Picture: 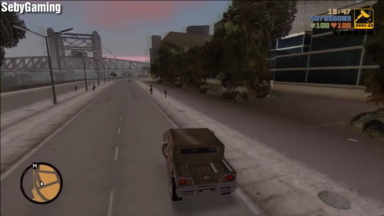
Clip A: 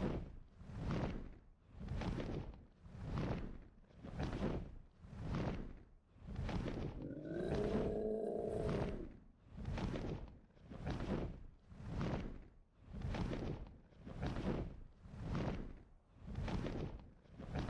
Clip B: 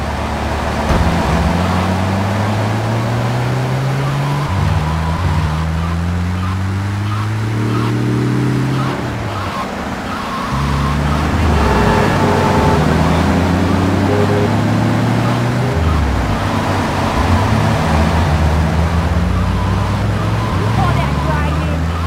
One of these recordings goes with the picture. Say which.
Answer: B